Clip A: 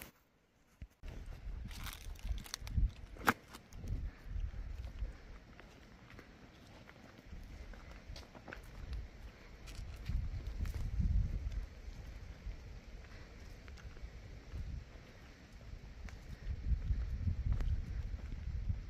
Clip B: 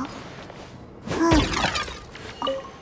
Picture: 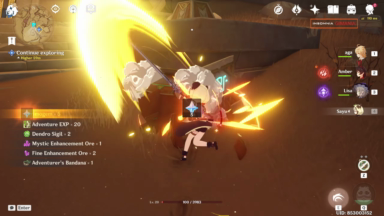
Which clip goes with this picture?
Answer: B